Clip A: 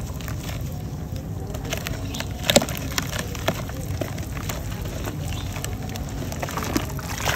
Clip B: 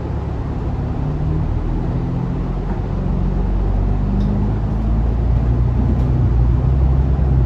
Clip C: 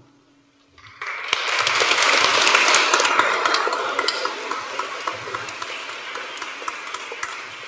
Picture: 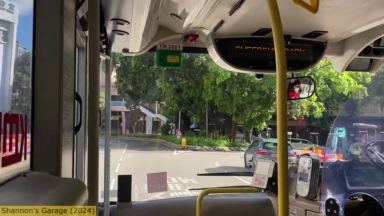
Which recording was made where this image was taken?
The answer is B